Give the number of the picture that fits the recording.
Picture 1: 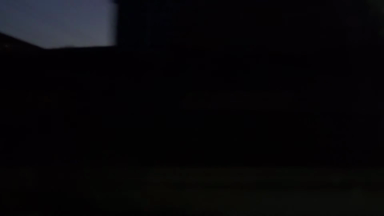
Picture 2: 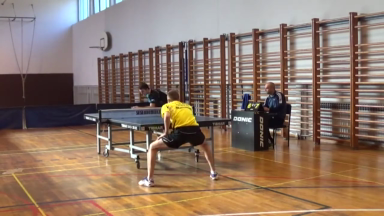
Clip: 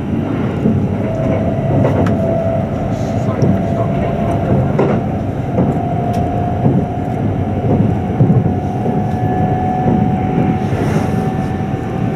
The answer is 1